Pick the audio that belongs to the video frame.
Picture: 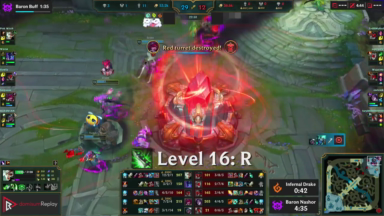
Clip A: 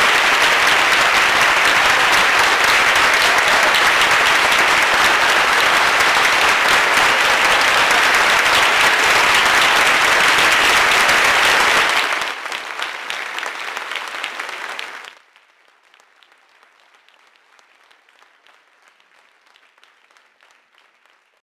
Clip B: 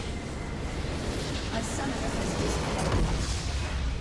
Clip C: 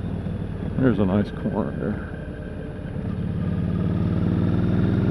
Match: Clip B